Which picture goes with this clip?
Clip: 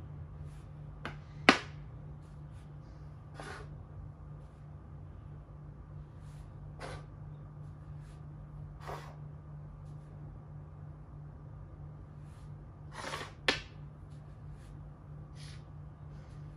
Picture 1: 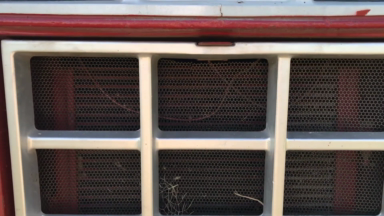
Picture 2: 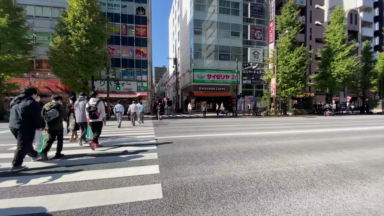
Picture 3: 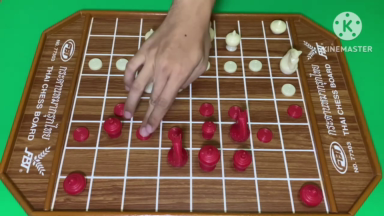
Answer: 3